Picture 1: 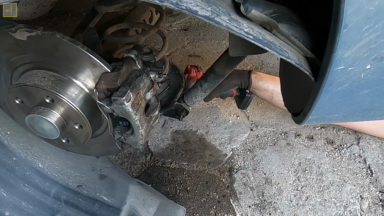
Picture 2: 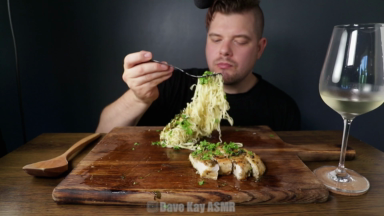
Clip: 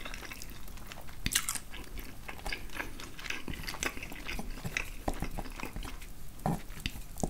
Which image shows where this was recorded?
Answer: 2